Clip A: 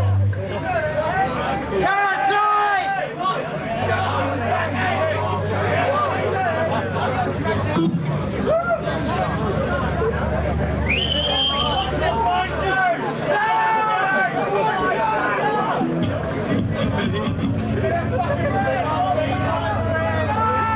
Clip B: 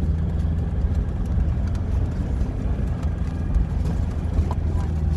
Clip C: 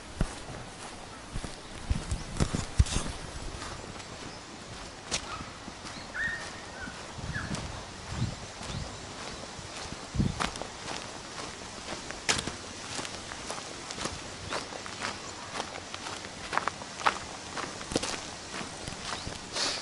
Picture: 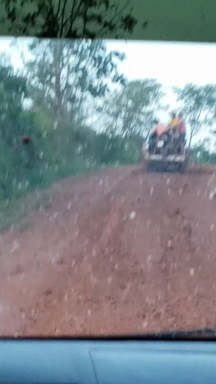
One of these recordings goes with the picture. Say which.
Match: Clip B